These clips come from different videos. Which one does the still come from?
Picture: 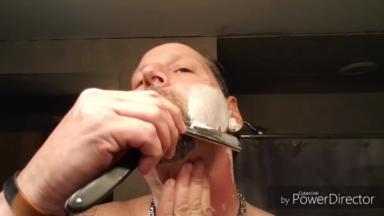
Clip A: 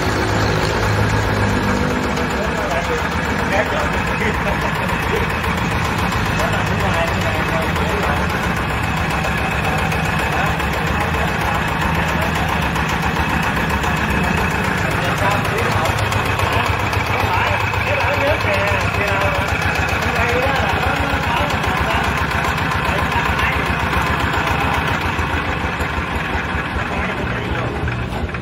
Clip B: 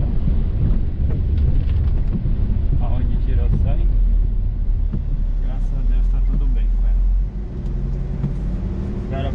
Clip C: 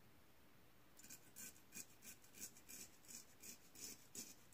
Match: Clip C